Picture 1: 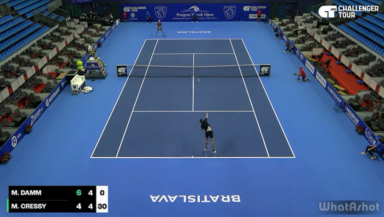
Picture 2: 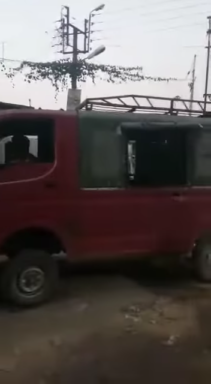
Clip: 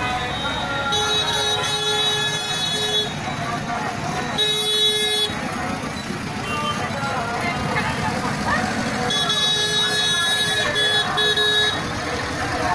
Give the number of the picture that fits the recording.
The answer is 2